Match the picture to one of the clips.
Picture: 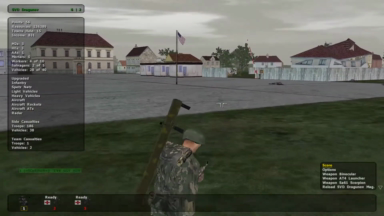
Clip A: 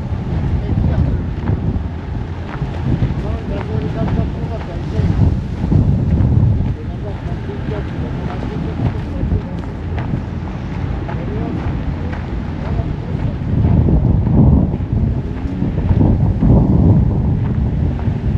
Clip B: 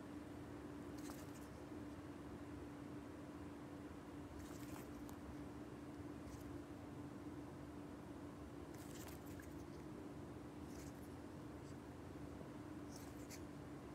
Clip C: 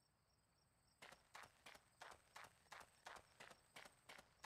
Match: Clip C